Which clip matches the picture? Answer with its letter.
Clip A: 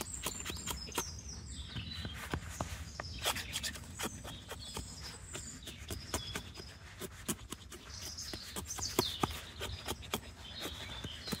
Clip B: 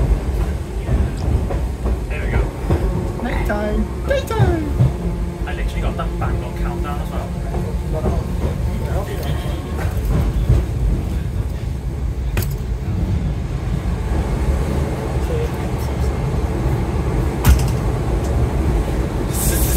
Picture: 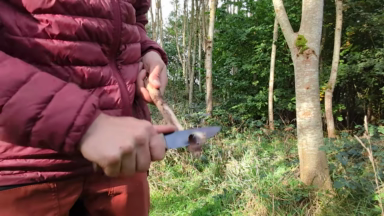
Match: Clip A